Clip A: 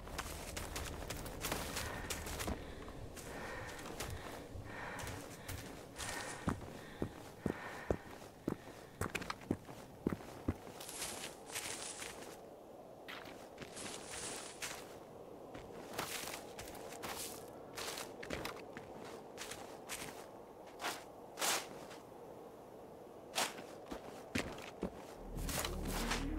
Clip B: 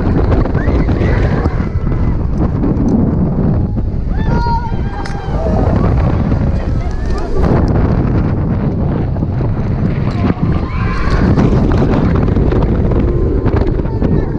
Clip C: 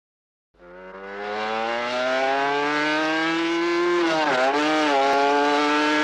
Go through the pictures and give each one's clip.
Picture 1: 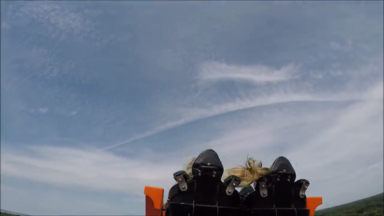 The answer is B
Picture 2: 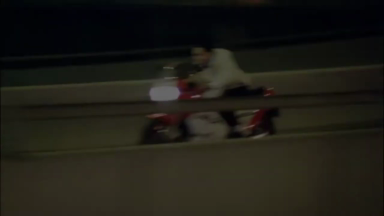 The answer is C